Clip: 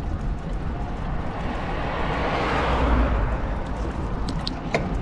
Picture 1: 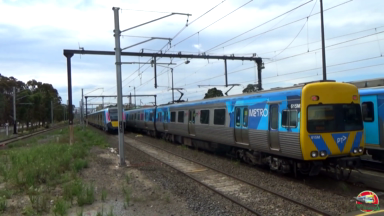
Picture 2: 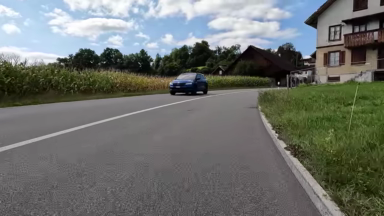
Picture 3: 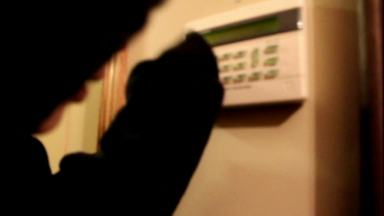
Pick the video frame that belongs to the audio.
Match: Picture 2